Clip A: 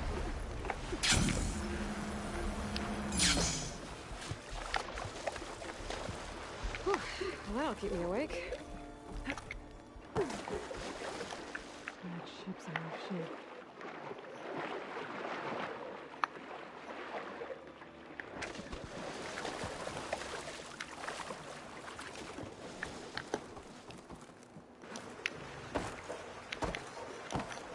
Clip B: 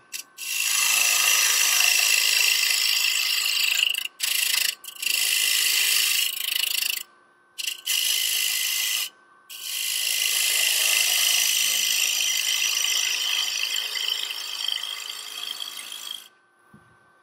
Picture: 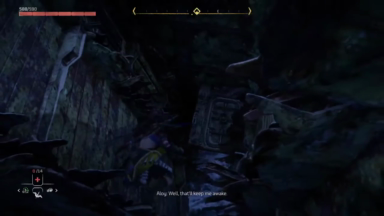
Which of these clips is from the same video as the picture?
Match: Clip A